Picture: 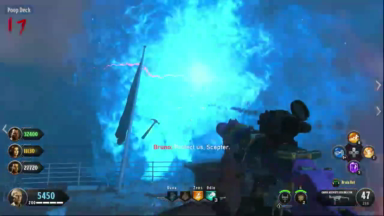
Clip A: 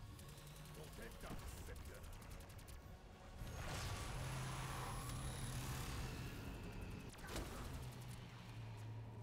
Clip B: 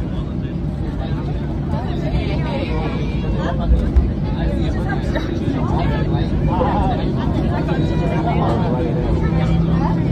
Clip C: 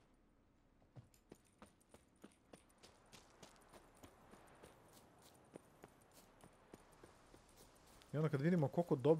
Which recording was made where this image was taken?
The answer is A